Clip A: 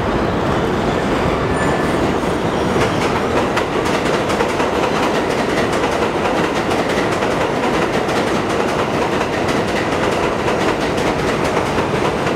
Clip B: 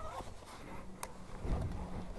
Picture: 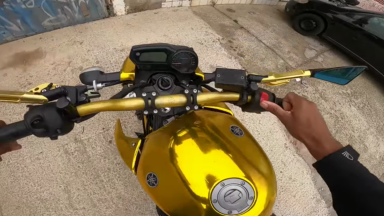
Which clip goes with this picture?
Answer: B